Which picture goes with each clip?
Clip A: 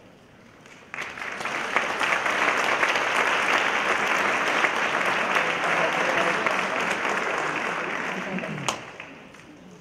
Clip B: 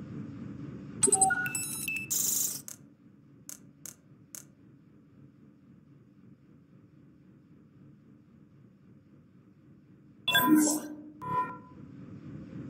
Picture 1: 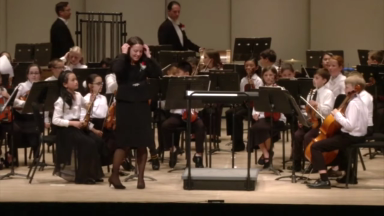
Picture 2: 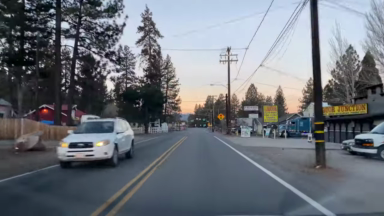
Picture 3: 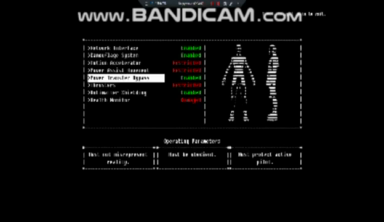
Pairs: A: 1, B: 3